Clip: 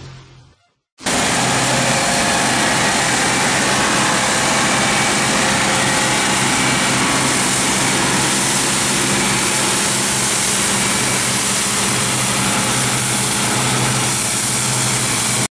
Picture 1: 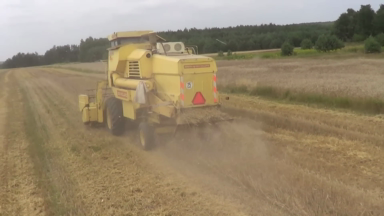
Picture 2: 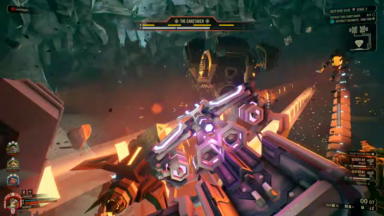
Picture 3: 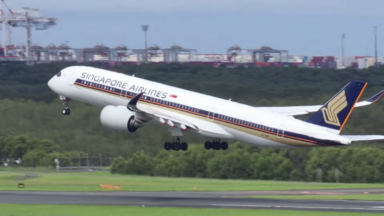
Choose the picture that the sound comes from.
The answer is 1